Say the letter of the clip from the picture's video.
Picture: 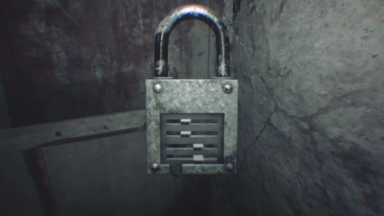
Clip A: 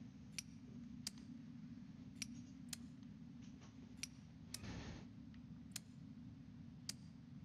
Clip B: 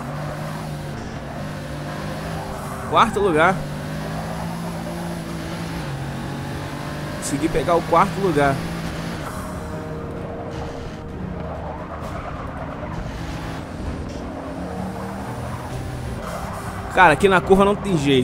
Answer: A